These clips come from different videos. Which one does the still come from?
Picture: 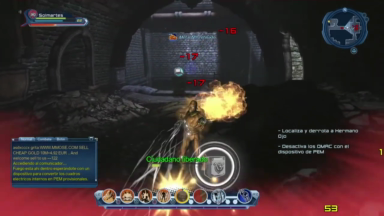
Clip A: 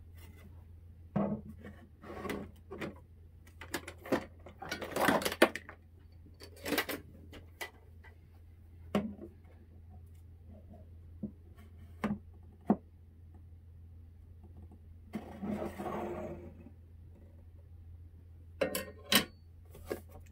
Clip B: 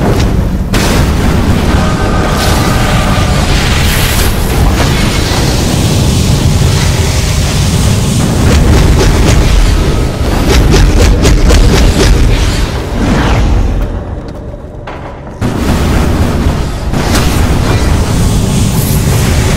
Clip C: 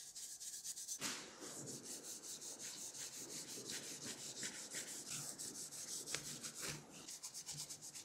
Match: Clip B